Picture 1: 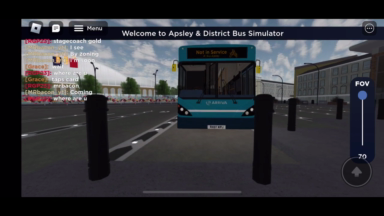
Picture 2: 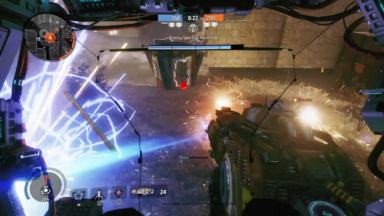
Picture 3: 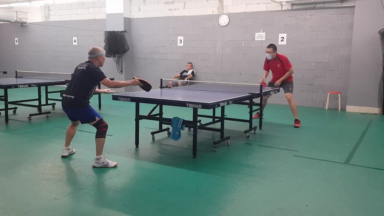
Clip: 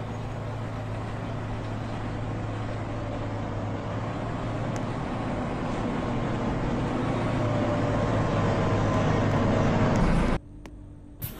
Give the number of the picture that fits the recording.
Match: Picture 1